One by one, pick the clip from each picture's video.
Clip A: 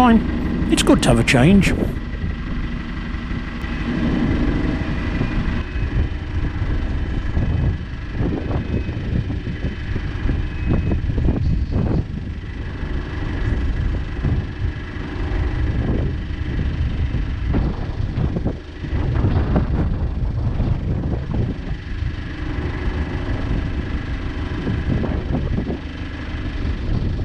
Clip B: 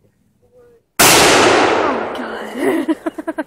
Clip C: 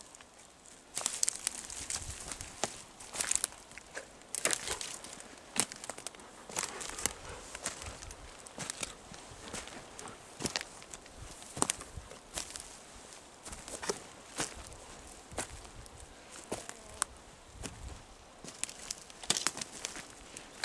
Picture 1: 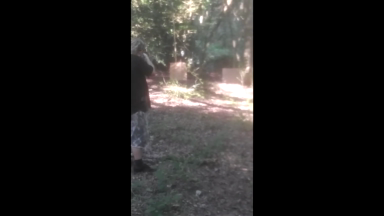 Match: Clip B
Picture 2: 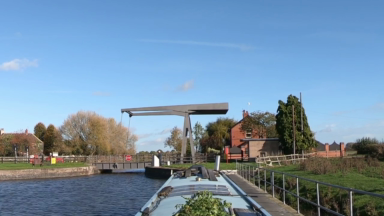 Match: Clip A